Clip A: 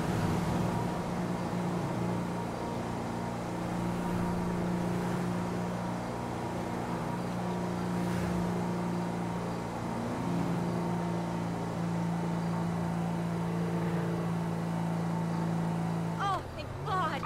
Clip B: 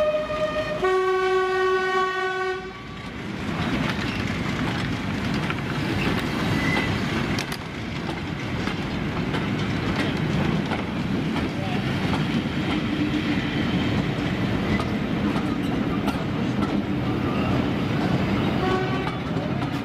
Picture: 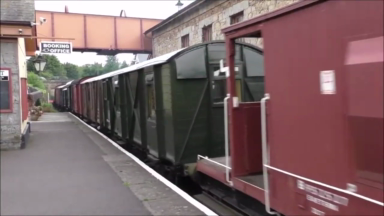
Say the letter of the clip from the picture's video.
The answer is B